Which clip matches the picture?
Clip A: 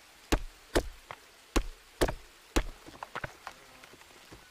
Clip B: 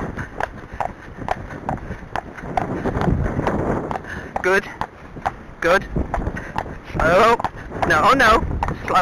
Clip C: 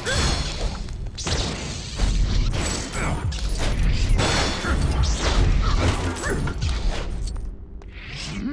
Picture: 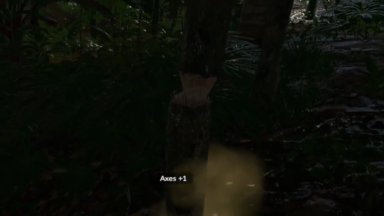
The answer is A